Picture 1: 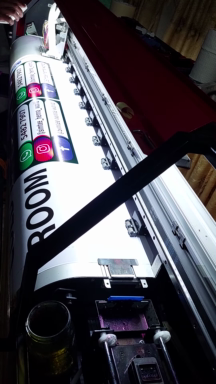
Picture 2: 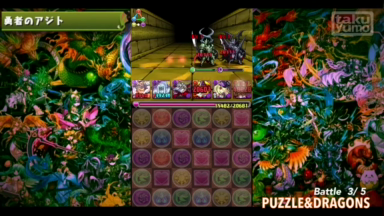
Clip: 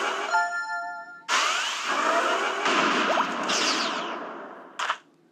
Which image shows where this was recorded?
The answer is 2